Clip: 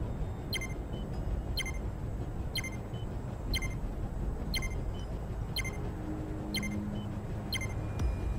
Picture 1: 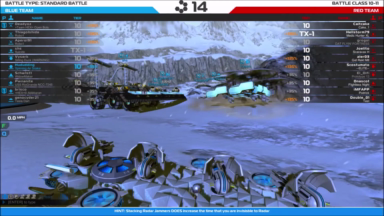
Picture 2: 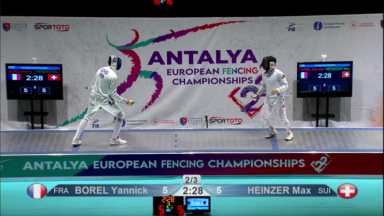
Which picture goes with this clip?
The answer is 1